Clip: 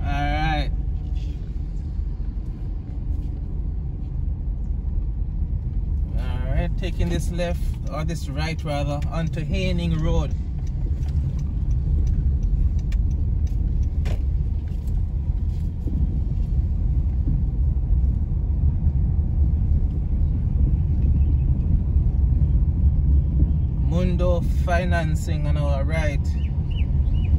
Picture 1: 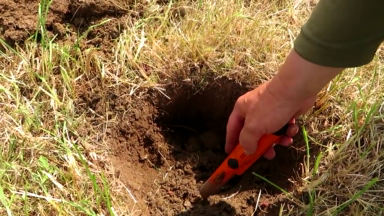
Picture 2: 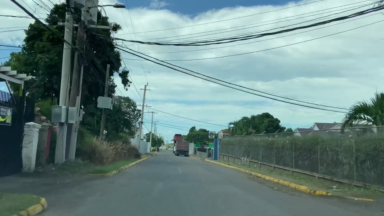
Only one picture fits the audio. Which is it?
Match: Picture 2